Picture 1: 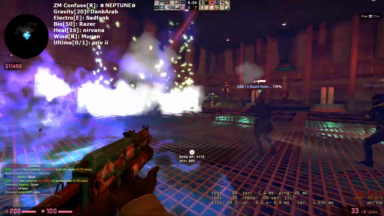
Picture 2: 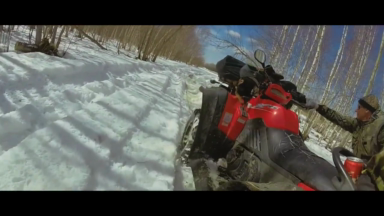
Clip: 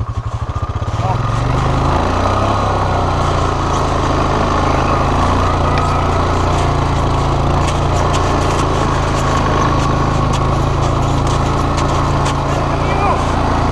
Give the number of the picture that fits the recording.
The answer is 2